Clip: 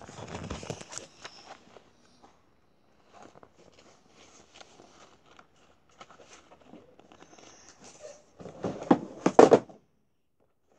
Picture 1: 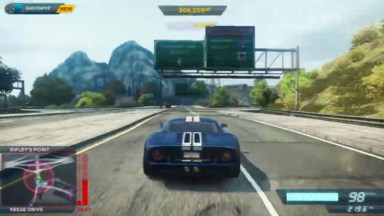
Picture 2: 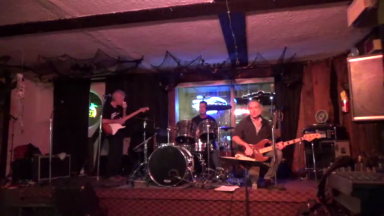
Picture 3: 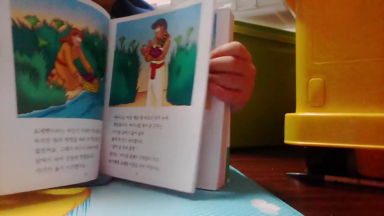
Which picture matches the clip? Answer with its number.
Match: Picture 3